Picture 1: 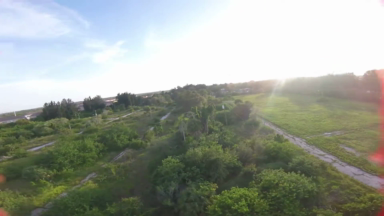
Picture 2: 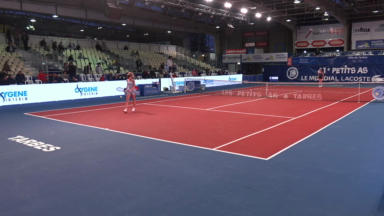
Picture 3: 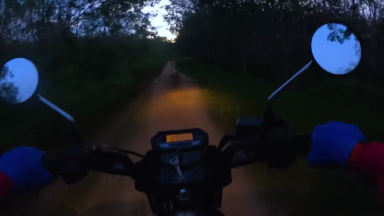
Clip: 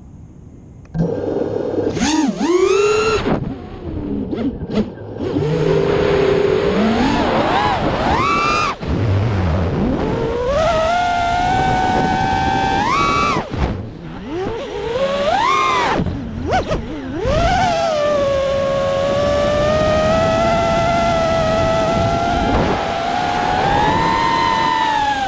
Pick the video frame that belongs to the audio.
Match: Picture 1